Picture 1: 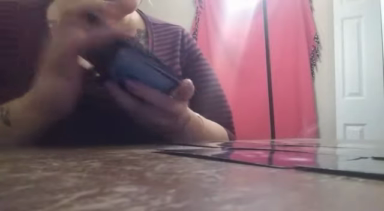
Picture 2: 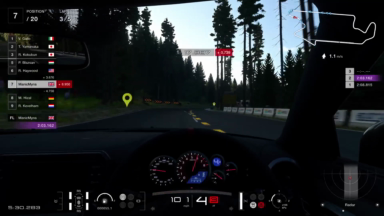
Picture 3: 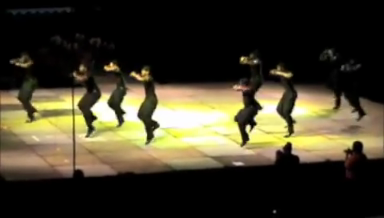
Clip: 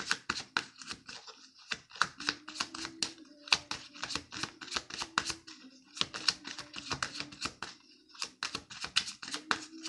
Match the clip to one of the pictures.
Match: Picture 1